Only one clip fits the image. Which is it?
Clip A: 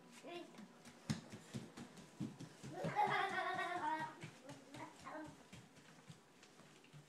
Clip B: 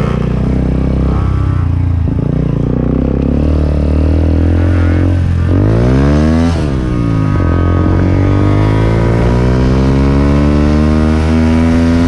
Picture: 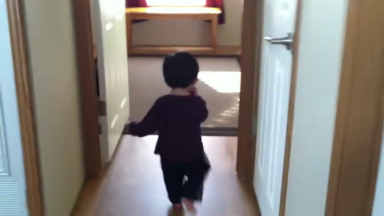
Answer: A